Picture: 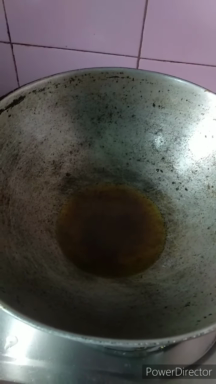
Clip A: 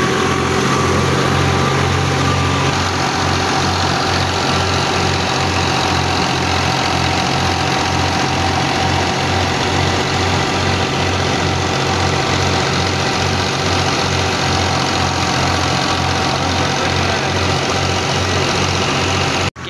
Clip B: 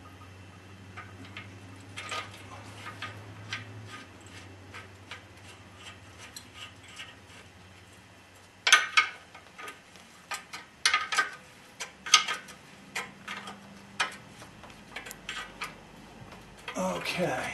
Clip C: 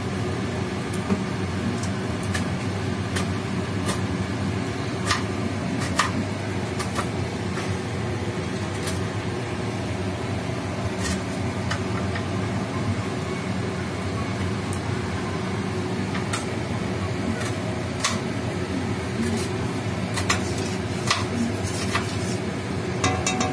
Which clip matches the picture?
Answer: C